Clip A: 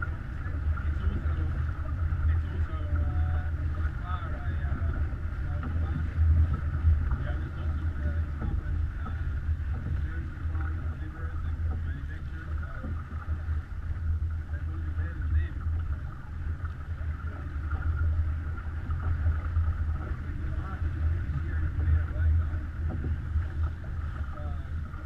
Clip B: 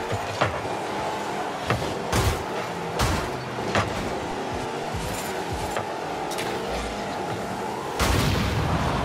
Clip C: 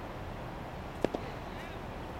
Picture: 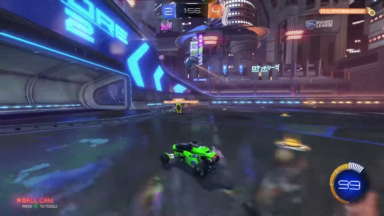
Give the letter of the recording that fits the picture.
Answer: B